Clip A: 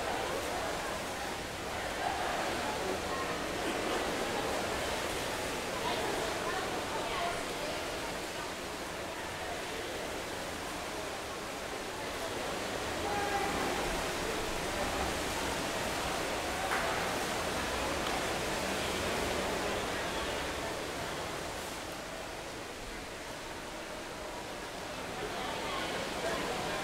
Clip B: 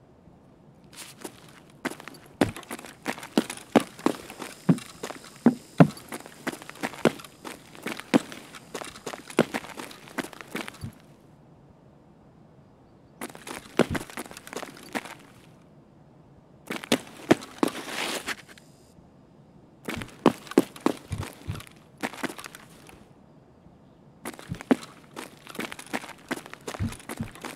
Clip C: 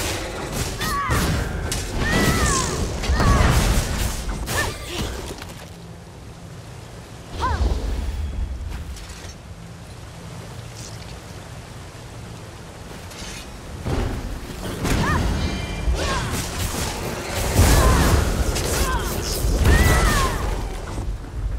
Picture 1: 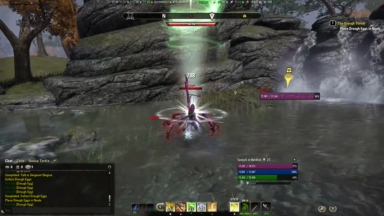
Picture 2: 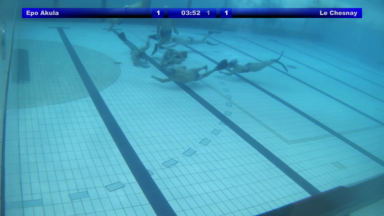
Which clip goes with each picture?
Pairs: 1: C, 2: A